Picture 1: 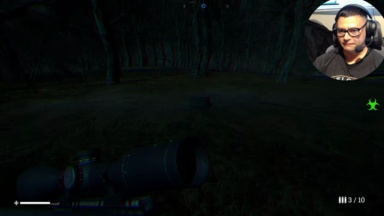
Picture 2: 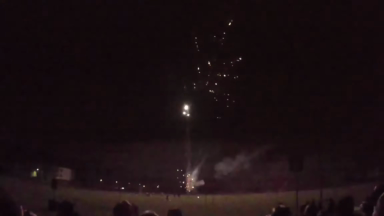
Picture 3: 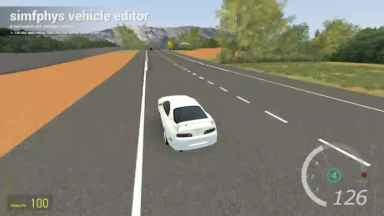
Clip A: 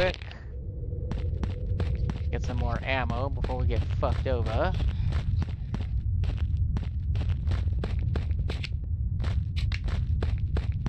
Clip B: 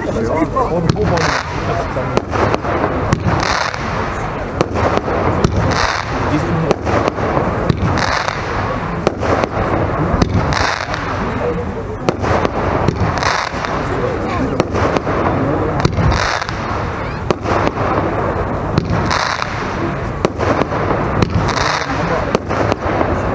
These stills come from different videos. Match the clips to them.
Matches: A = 1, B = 2